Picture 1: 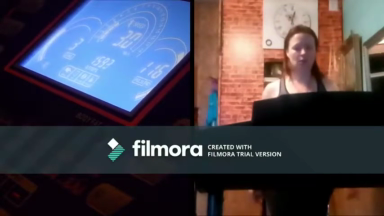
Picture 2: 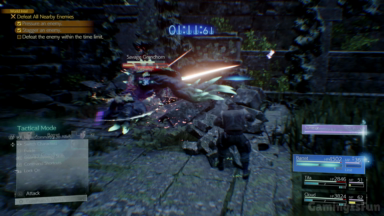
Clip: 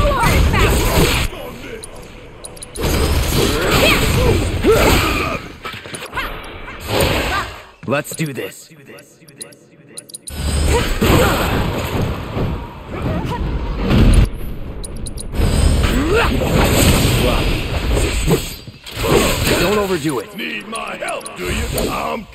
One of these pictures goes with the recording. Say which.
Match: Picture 2